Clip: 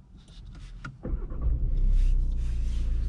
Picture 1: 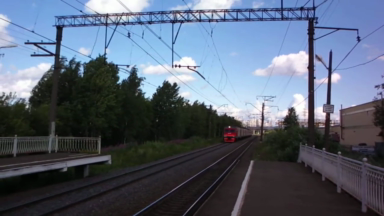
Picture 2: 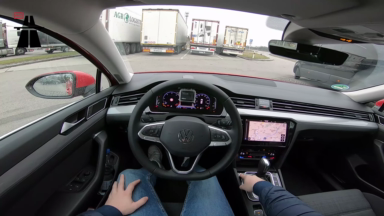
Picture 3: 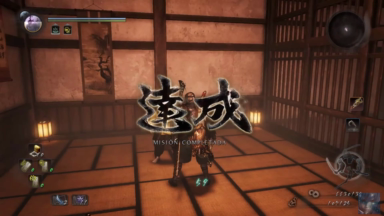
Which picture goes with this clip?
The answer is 2